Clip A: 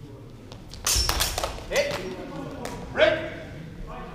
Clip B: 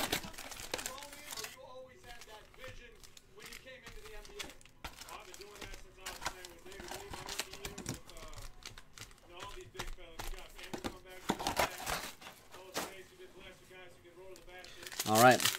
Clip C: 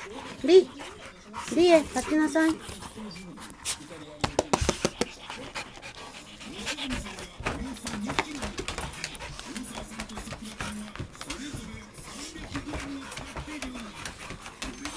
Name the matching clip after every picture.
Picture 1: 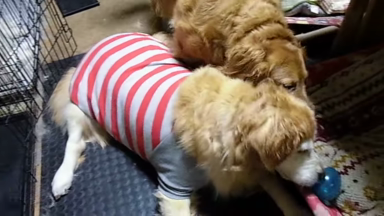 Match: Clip C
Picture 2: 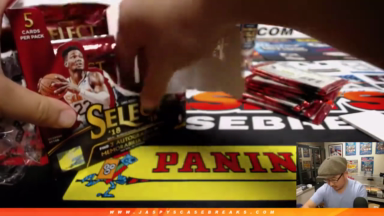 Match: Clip B